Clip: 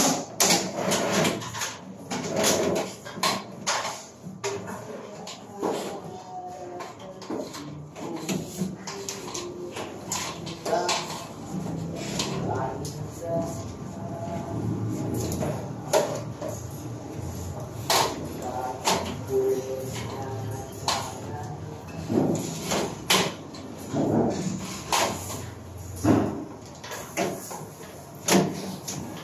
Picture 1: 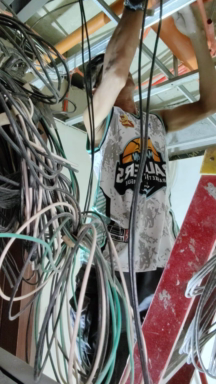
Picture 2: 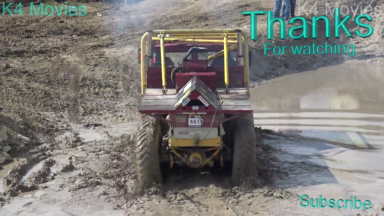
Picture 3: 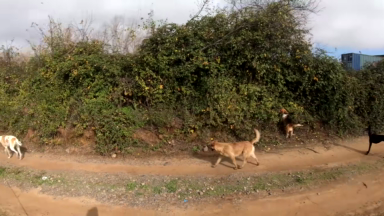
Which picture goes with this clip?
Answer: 1